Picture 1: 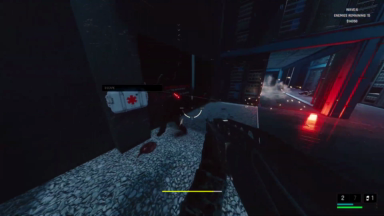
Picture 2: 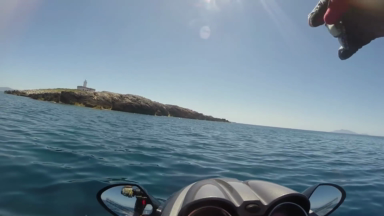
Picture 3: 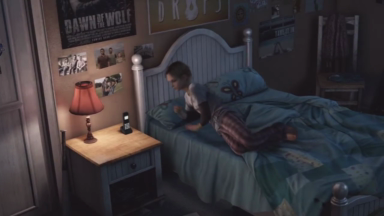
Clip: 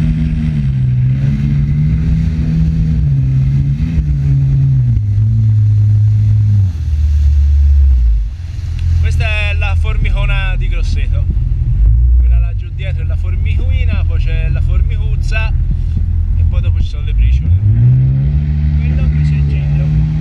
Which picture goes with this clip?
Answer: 2